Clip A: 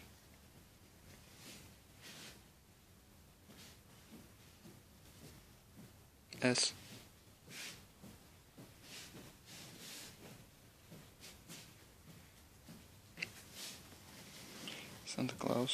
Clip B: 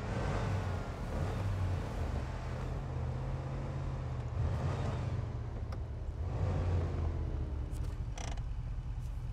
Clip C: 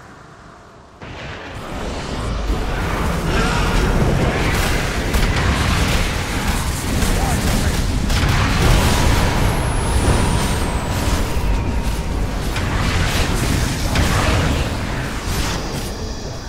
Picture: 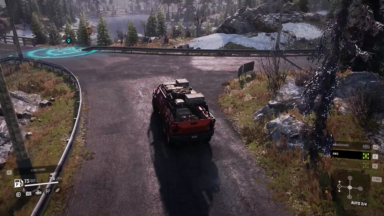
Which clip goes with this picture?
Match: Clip B